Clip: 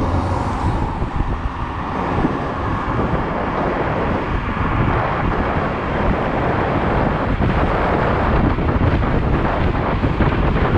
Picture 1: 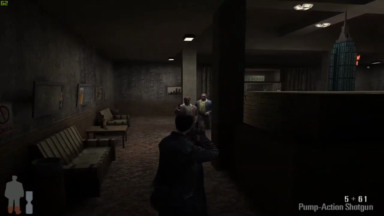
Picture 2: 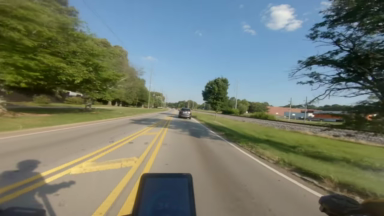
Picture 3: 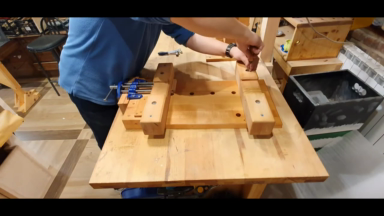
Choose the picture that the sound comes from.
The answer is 2